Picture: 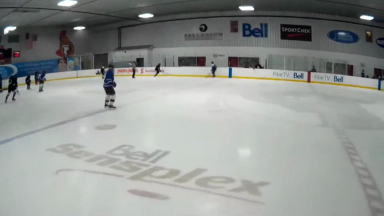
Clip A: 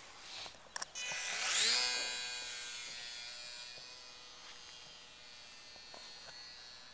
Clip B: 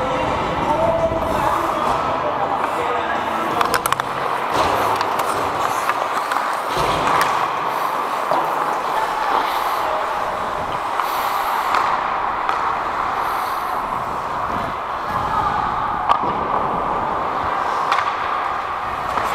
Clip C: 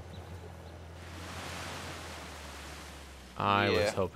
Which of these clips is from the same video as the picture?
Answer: B